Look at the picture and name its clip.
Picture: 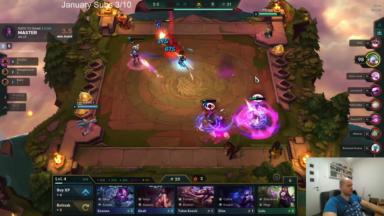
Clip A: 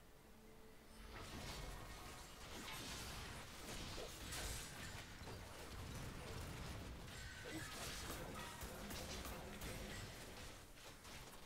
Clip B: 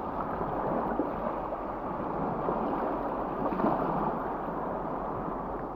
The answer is A